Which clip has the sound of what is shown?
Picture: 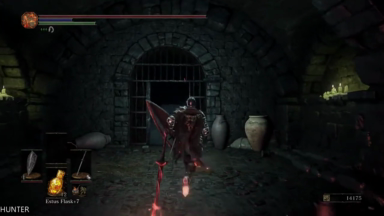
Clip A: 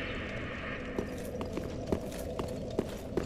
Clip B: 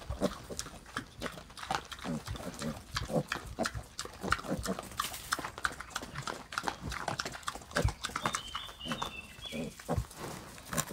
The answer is A